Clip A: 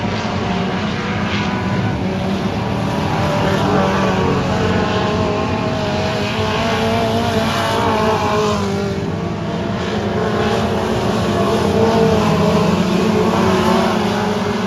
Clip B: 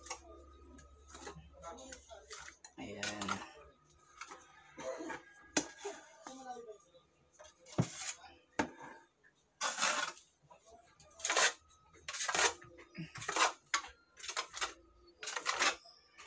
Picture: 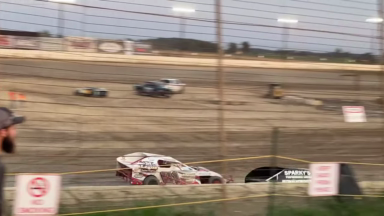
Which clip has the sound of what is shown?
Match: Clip A